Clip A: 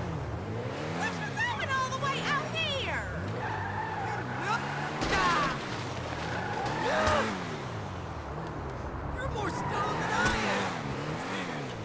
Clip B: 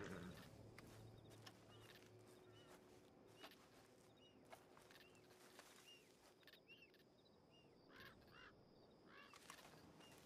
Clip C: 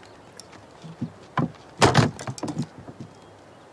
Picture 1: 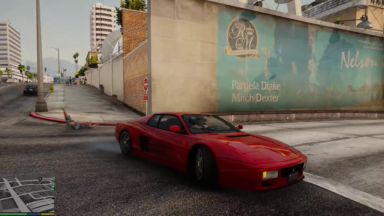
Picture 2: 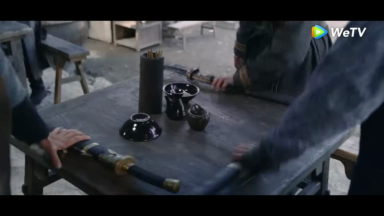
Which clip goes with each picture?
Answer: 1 A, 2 C